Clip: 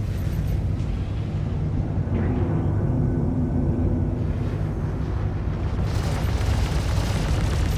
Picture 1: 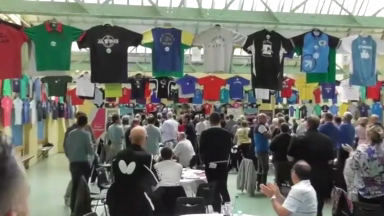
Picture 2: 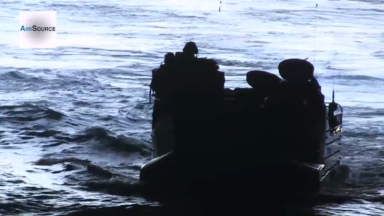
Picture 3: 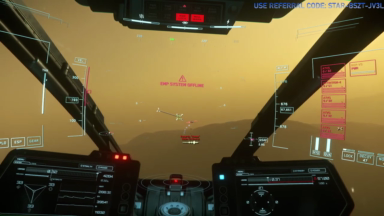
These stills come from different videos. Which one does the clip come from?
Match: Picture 3